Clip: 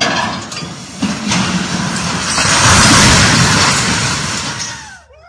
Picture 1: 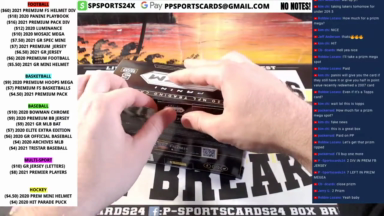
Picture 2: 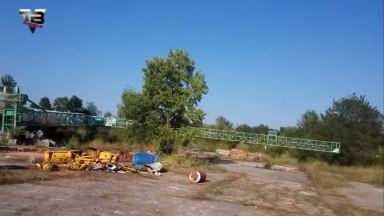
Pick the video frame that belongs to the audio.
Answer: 2